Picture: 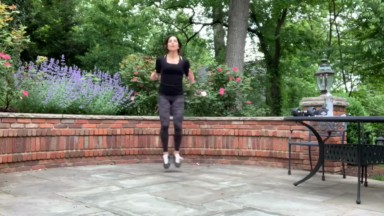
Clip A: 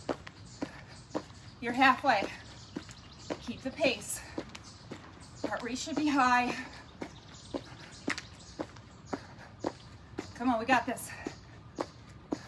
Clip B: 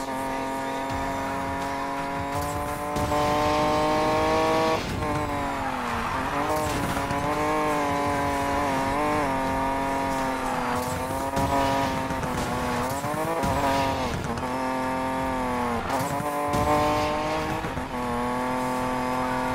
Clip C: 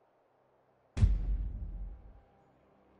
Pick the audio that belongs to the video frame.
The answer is A